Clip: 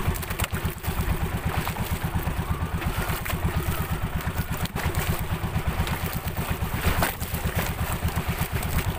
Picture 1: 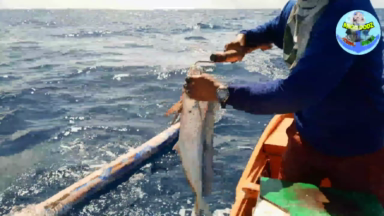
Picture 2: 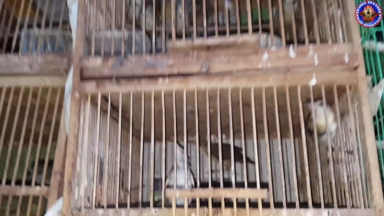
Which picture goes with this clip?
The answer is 1